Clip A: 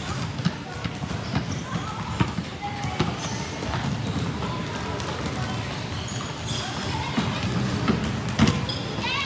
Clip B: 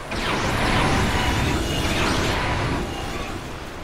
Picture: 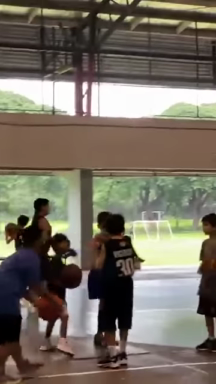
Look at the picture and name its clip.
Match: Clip A